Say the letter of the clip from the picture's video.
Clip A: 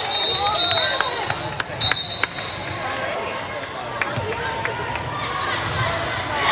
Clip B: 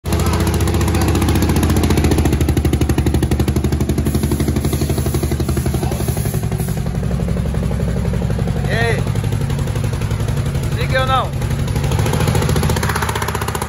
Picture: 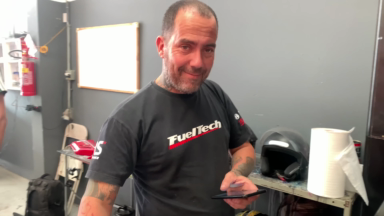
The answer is B